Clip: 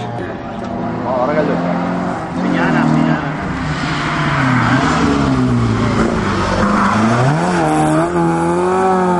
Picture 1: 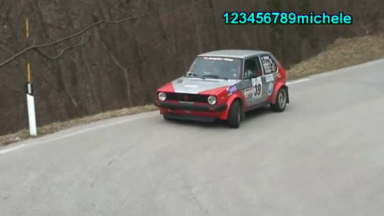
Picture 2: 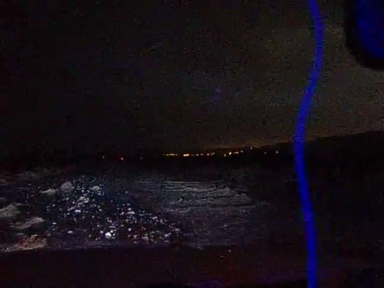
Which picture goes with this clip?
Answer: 1